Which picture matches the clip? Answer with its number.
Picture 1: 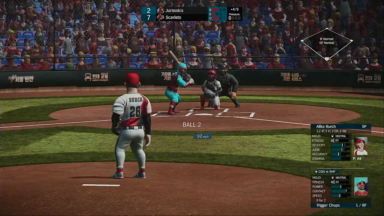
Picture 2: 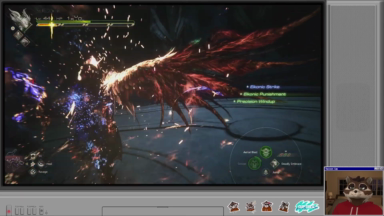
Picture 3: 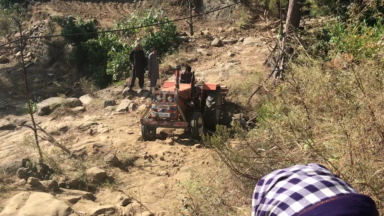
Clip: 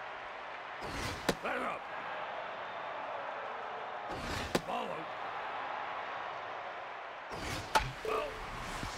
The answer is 1